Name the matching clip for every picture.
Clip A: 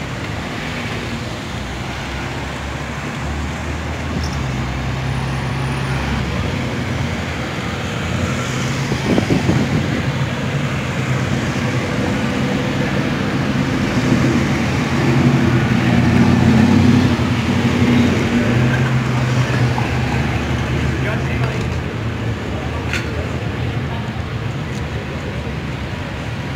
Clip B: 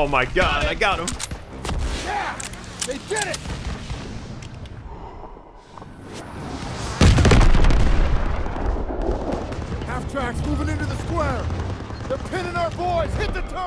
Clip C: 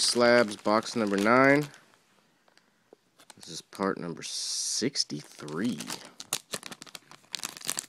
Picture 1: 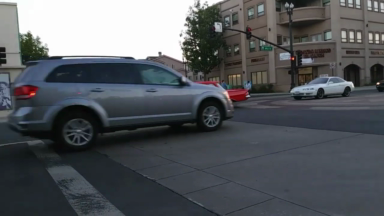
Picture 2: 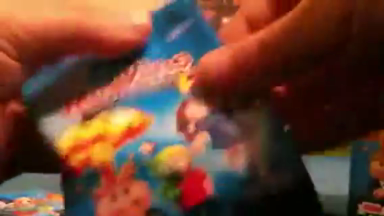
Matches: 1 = A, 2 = C